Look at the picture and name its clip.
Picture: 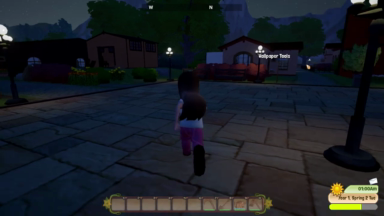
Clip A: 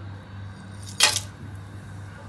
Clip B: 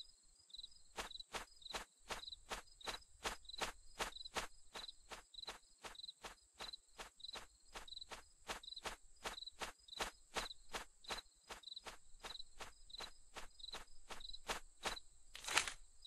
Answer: B